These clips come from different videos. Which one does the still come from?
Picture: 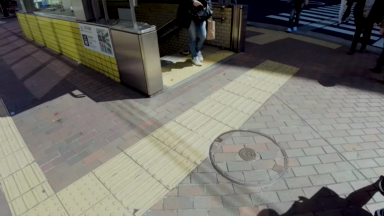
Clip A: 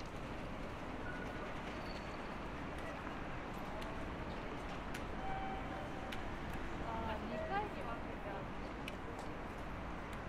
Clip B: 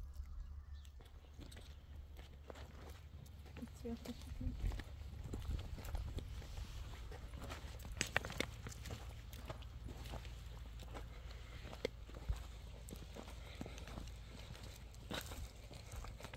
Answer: A